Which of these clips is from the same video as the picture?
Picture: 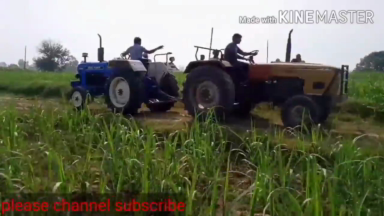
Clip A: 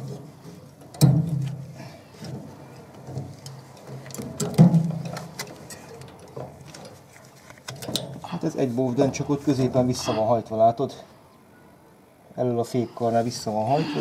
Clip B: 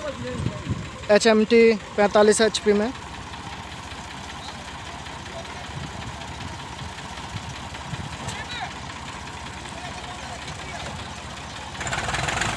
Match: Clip B